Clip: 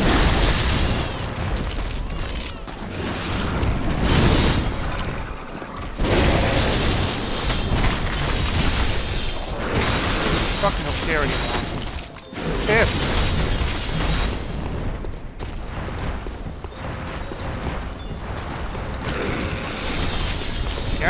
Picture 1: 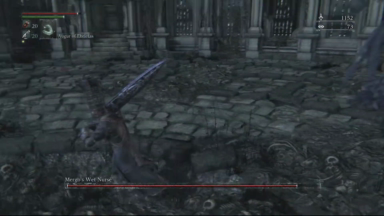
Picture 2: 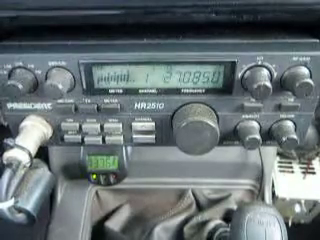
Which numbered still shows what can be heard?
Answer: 1